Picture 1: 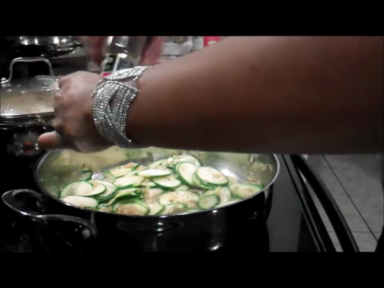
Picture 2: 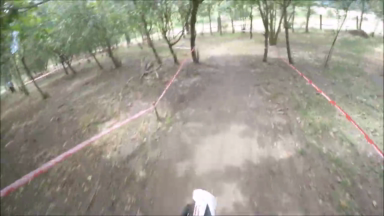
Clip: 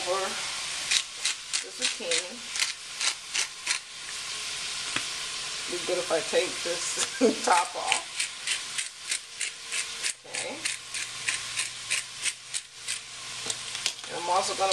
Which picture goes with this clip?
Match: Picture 1